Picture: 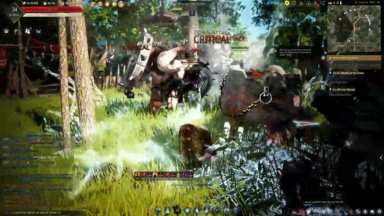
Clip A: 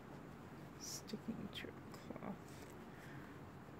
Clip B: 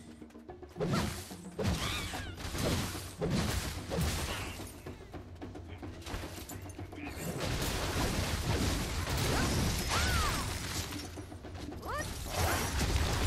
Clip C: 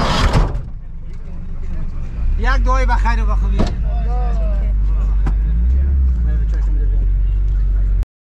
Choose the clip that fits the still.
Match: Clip B